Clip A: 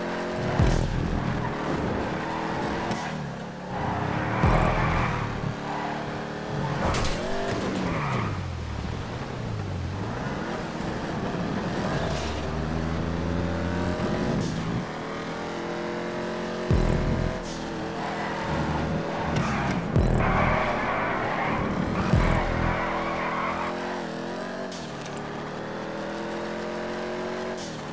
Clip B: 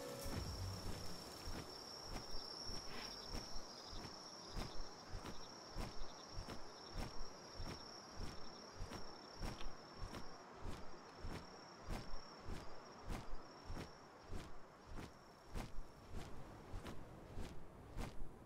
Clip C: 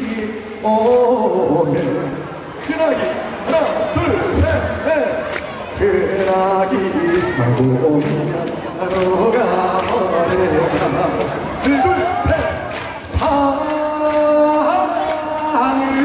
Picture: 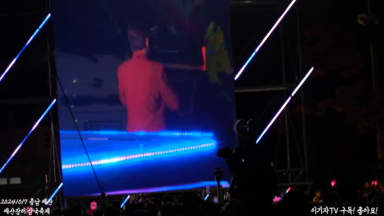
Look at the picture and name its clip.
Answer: C